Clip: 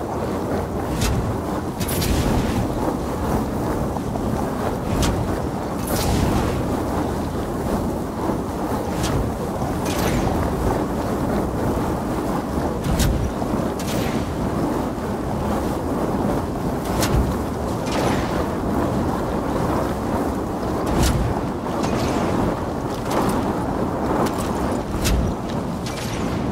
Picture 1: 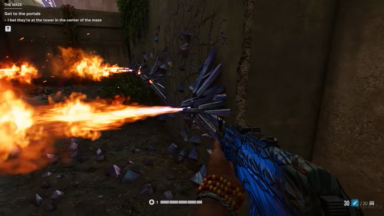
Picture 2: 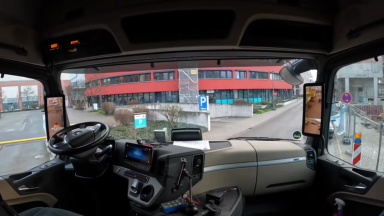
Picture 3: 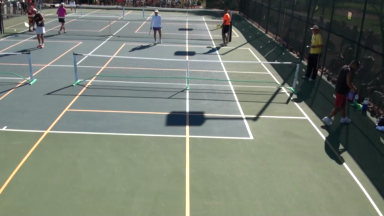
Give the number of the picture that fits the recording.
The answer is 1